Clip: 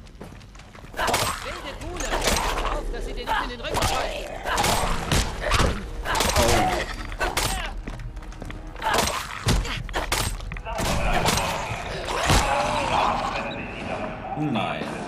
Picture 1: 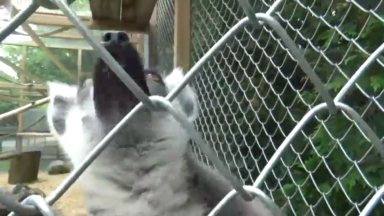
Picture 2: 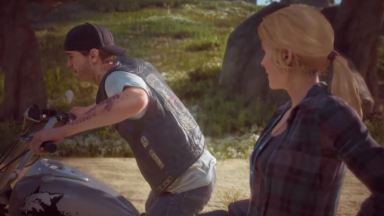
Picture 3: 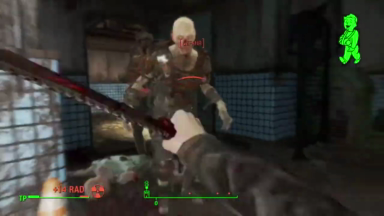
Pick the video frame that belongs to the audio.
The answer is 3